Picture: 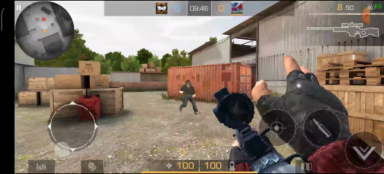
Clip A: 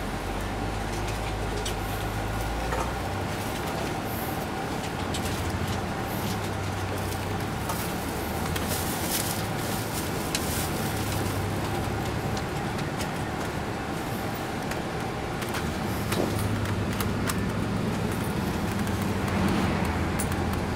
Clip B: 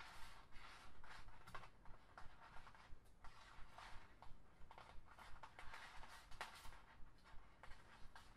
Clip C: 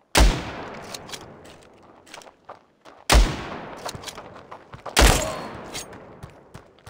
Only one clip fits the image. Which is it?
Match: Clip C